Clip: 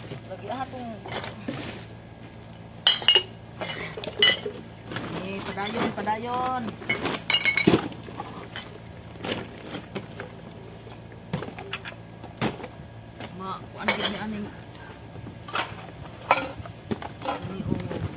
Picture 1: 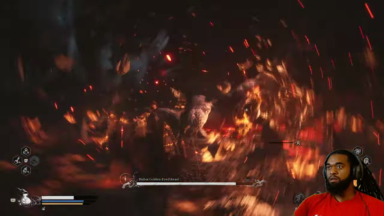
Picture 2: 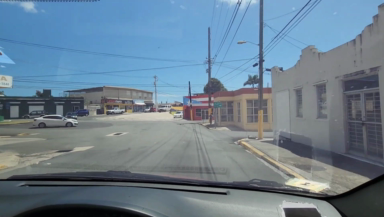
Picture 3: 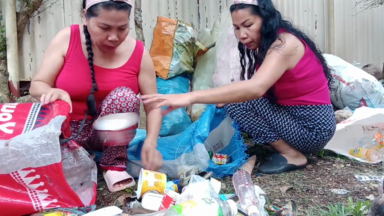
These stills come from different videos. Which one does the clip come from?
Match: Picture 3